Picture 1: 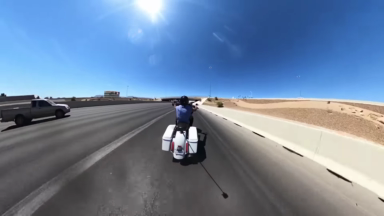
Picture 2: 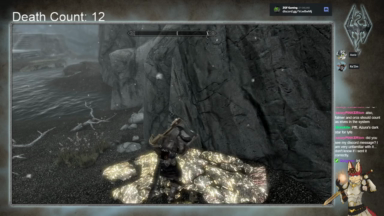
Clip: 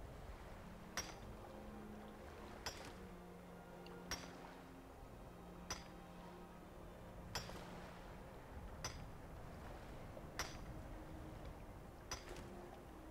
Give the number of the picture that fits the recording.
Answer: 2